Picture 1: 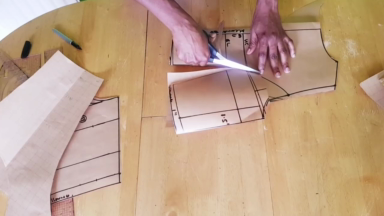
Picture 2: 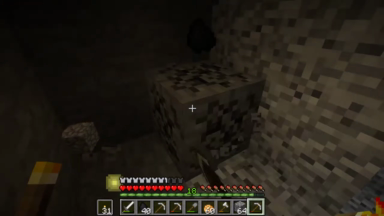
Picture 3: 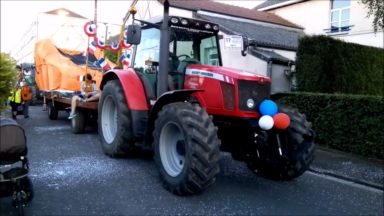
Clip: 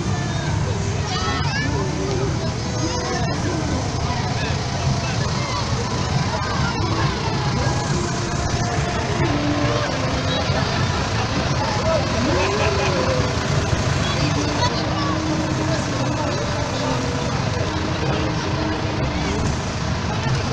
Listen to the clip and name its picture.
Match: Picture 3